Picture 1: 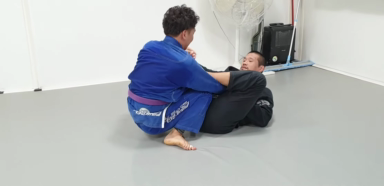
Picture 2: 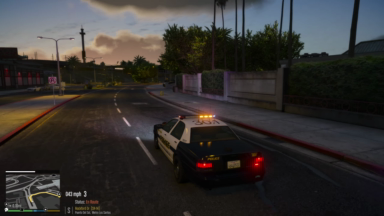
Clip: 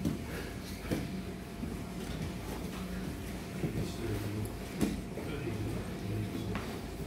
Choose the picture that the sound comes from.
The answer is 1